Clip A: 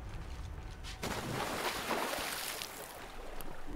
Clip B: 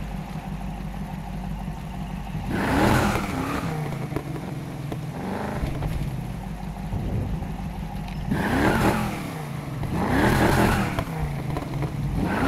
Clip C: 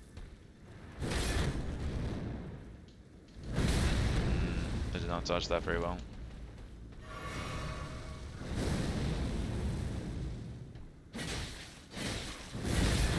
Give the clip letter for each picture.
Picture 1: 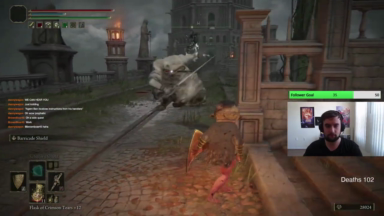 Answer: C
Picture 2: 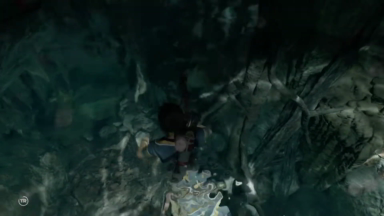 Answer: A